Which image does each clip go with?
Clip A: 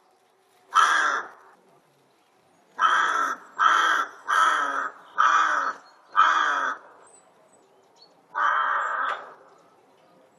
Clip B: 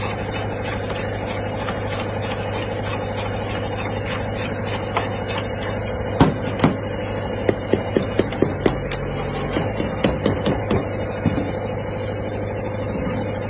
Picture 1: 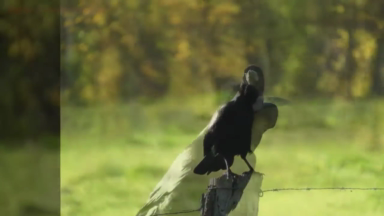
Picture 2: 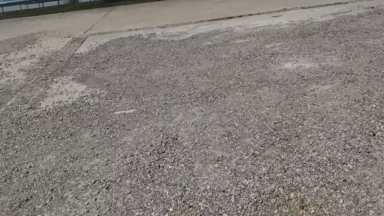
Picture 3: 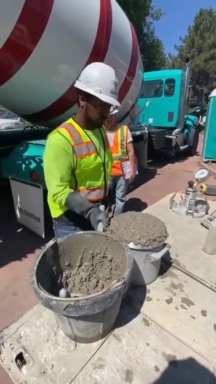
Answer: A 1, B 3